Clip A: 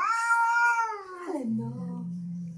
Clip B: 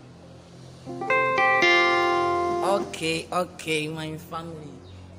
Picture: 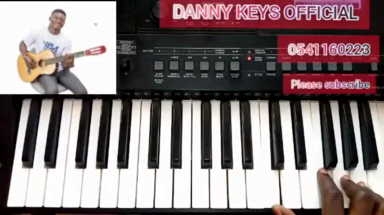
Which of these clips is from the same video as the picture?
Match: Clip B